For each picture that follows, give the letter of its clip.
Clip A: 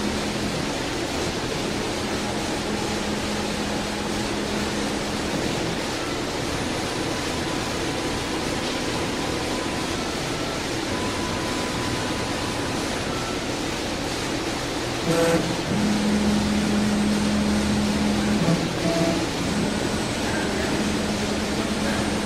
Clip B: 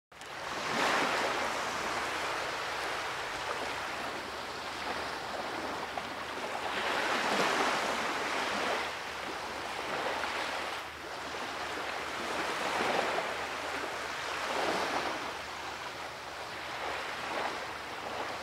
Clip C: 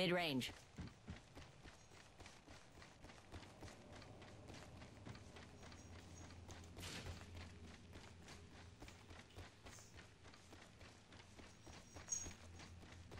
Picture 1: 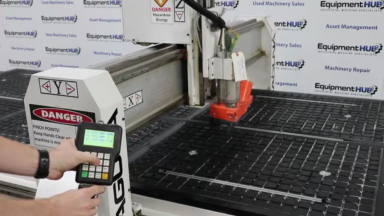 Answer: A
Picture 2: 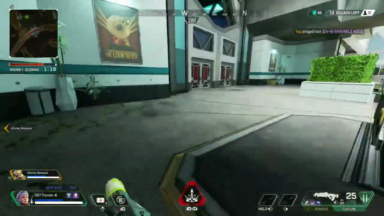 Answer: C